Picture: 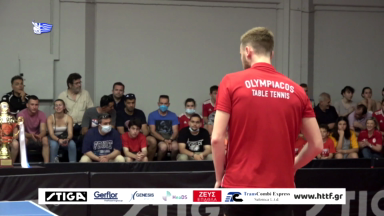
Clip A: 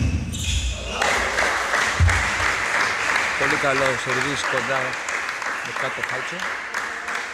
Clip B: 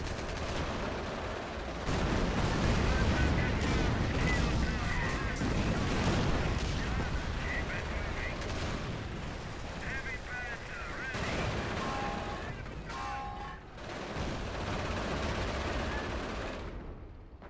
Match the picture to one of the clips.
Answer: A